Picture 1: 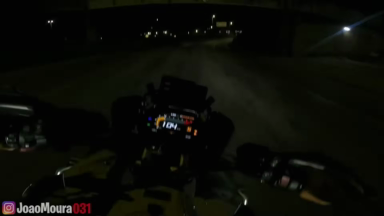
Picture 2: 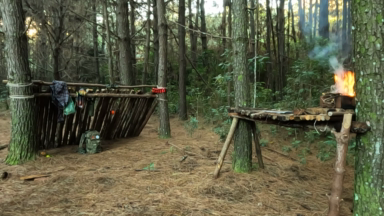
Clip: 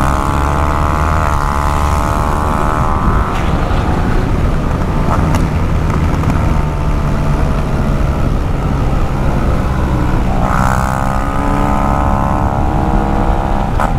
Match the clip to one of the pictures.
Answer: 1